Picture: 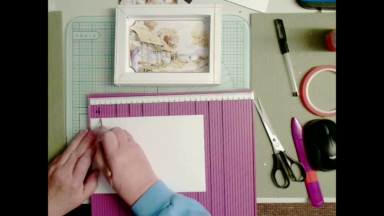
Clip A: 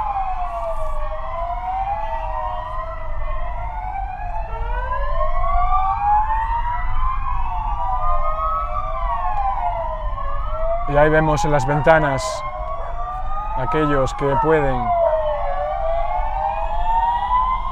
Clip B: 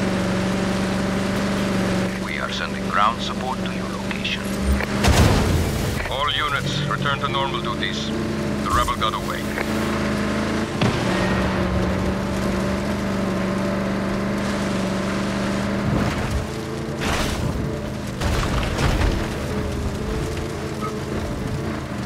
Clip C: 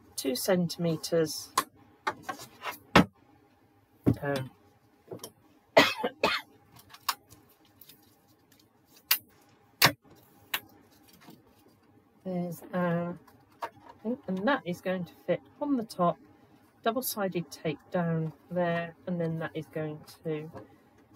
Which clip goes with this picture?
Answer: C